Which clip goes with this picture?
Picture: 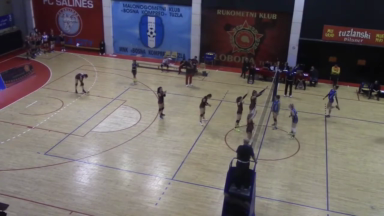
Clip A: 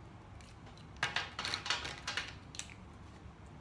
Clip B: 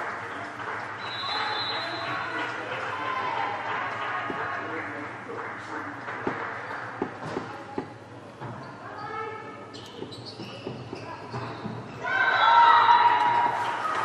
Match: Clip B